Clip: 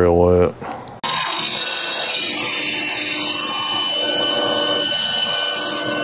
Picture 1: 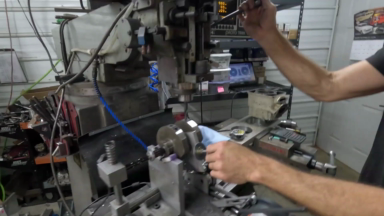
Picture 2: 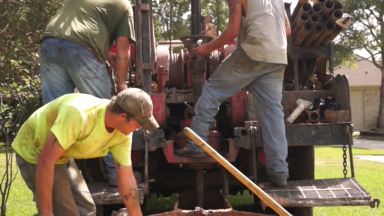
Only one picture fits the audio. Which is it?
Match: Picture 1